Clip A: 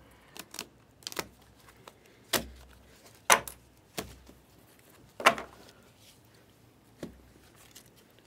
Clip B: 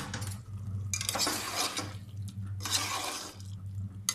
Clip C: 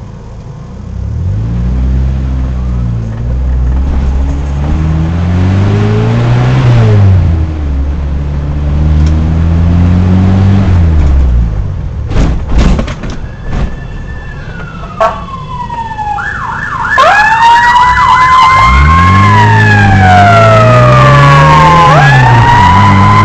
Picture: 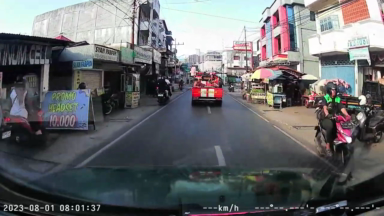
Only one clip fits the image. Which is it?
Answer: C